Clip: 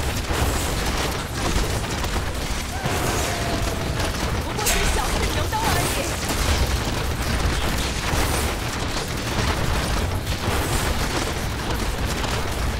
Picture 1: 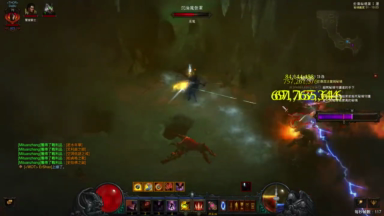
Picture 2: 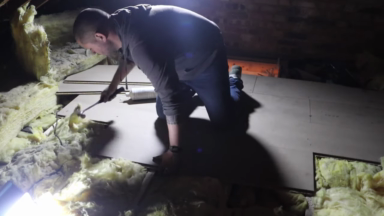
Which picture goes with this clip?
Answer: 1